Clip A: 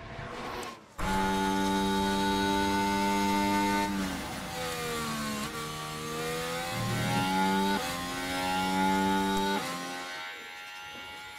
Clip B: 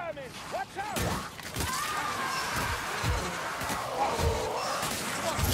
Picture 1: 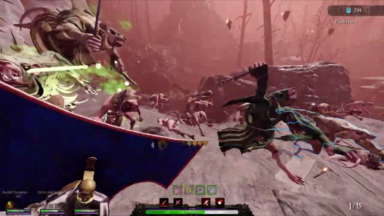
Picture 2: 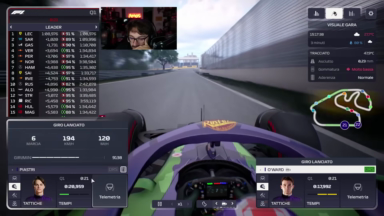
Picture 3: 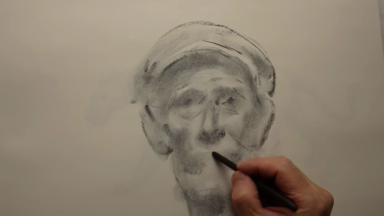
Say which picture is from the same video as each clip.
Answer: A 2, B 1